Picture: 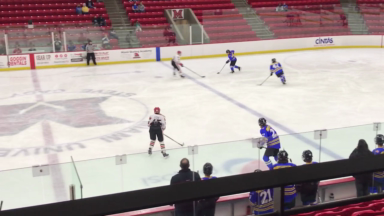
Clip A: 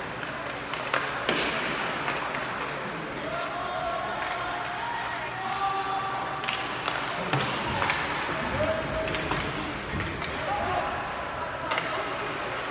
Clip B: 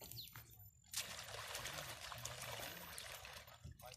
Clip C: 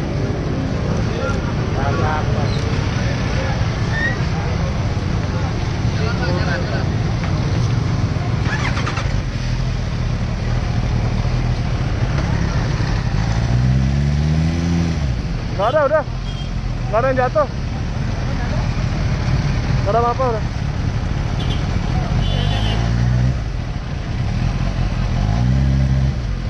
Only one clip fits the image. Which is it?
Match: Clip A